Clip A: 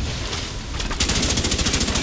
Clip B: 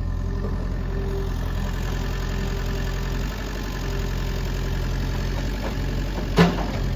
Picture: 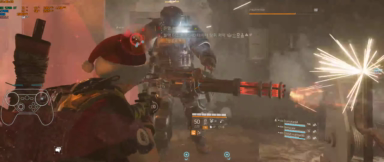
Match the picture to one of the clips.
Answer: A